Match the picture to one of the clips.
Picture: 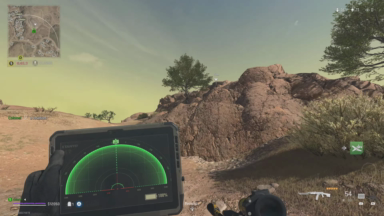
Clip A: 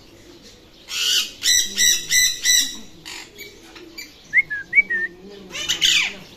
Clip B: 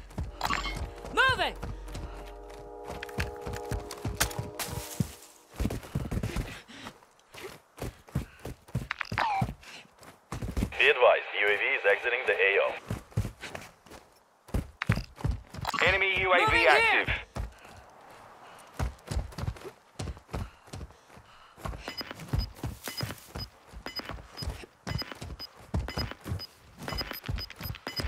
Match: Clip B